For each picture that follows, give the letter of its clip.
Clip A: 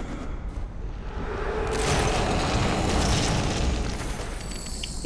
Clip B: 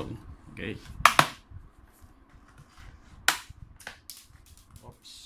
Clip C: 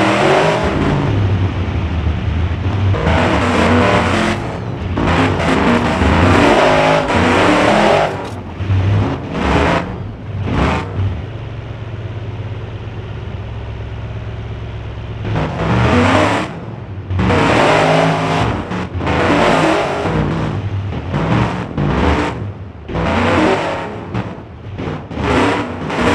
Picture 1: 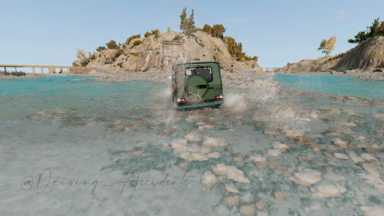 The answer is C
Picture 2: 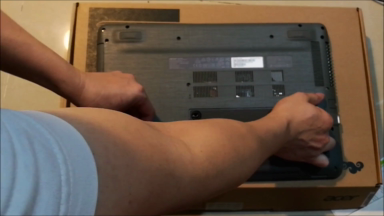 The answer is B